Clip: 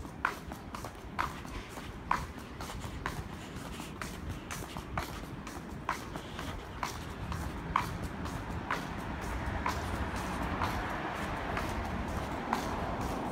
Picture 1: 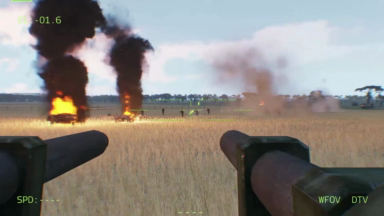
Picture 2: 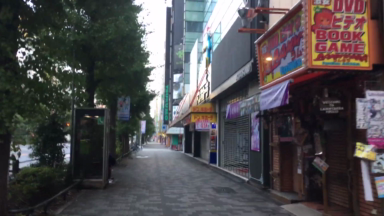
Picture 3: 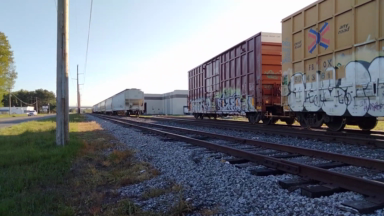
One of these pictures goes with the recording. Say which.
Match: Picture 2